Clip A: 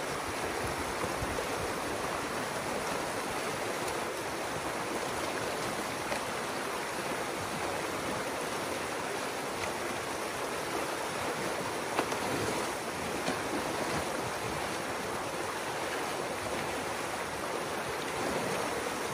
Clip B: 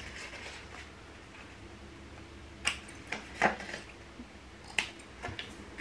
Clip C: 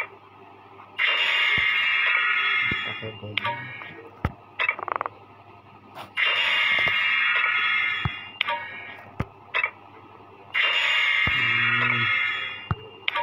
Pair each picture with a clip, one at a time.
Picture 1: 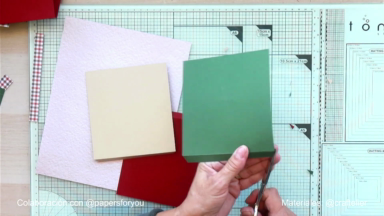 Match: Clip B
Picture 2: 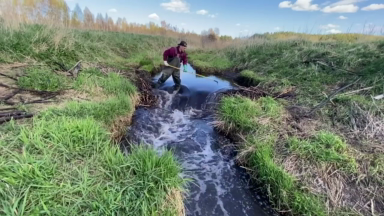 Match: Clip A